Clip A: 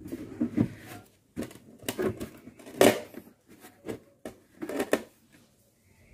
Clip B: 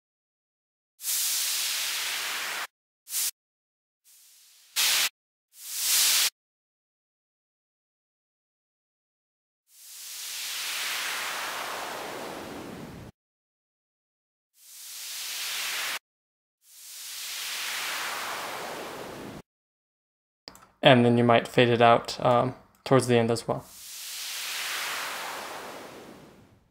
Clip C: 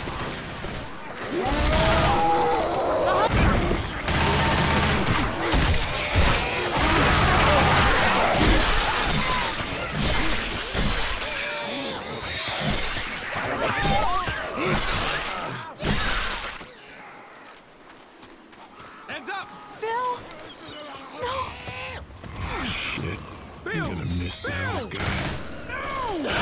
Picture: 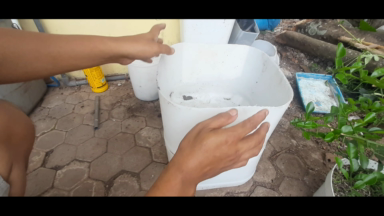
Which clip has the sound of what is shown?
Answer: A